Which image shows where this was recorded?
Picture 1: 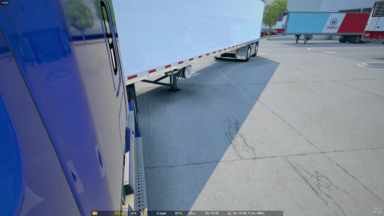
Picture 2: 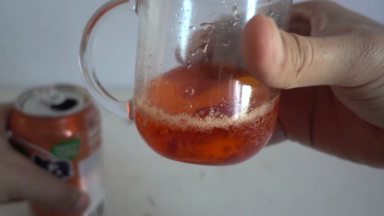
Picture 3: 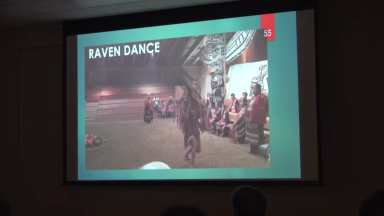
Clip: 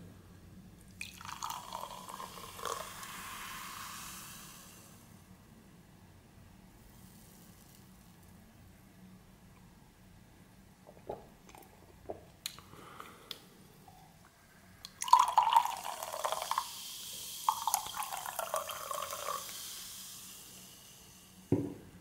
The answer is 2